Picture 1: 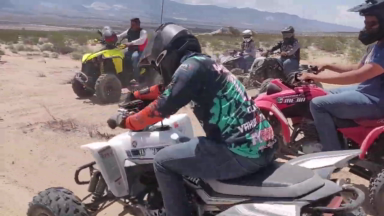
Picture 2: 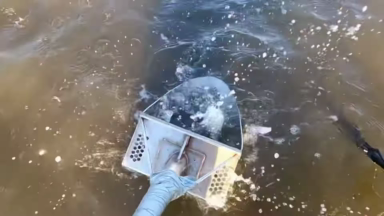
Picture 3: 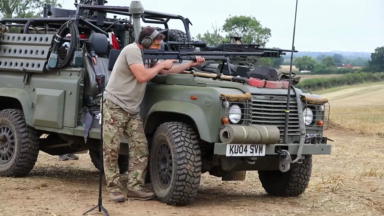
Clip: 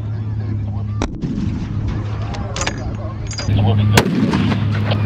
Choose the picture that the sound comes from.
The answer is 3